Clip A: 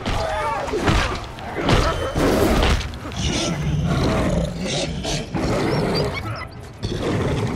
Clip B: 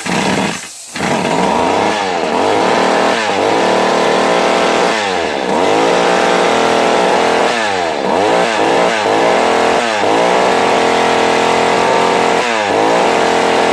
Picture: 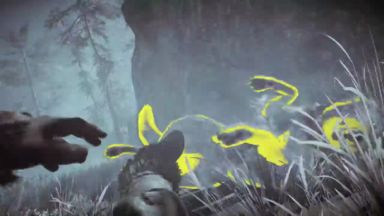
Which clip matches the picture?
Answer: A